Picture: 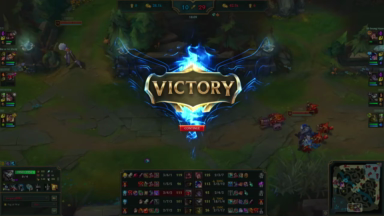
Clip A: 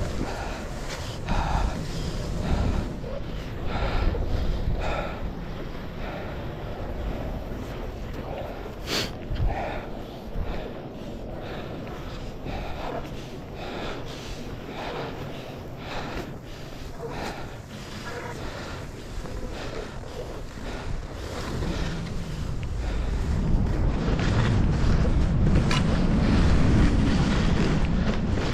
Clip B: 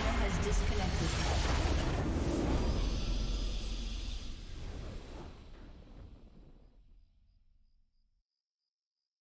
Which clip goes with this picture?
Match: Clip B